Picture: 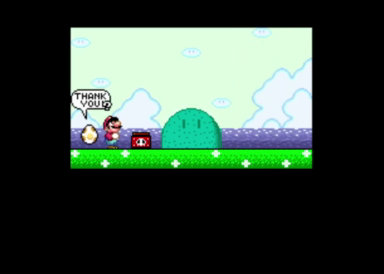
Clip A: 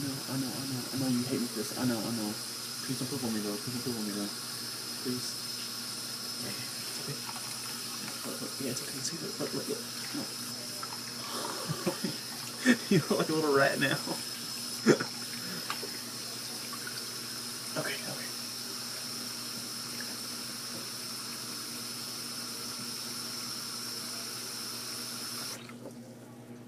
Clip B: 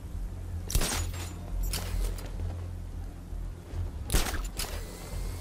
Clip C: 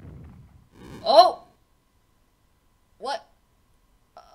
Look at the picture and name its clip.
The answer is C